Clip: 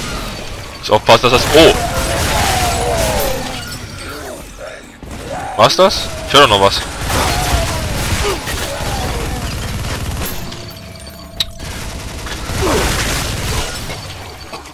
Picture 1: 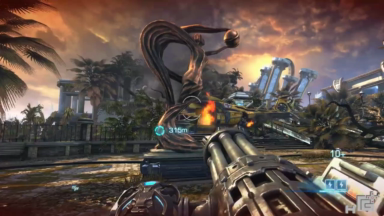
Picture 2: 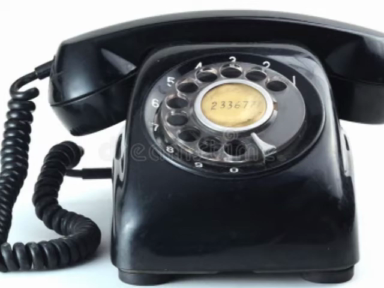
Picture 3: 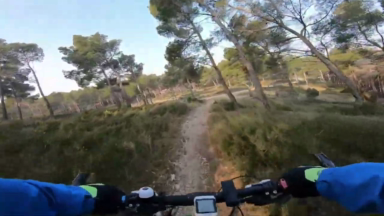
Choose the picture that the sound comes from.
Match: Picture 1